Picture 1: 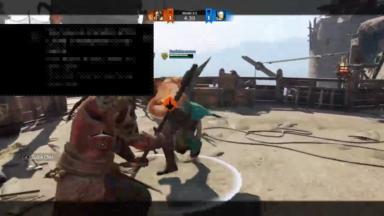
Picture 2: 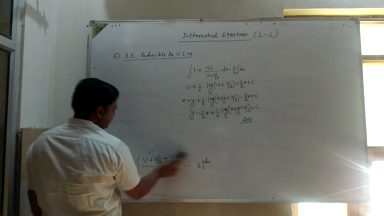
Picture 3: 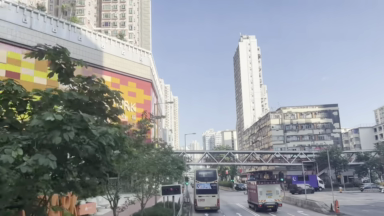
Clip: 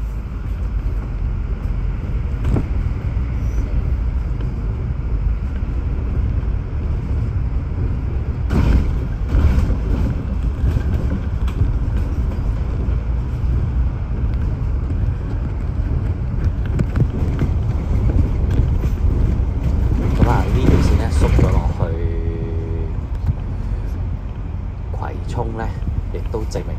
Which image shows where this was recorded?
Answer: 3